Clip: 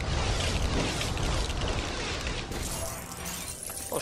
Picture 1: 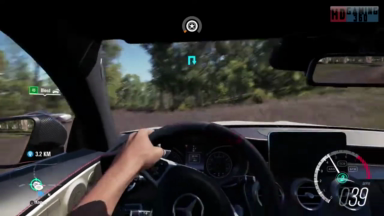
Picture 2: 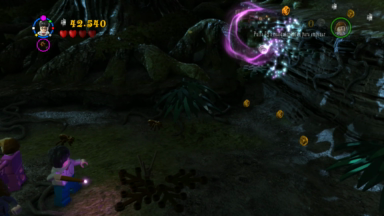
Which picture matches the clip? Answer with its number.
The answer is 2